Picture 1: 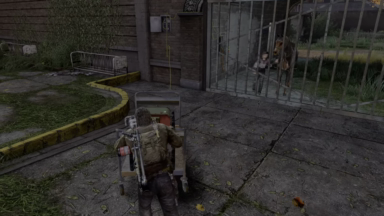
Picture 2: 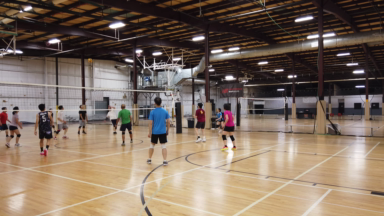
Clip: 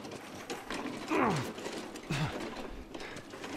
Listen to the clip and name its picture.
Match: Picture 1